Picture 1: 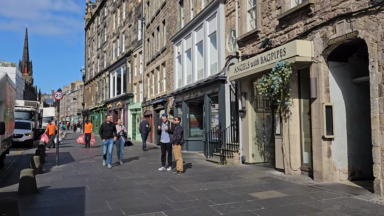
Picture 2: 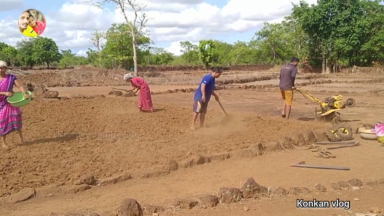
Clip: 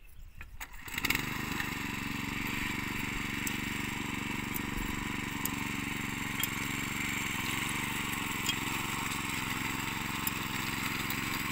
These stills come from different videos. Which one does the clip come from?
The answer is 2